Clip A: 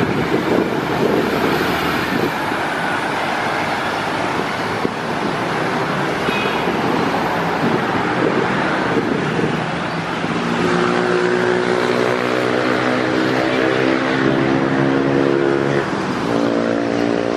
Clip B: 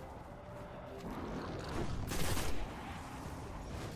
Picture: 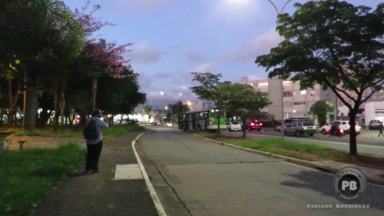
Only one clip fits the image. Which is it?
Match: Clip A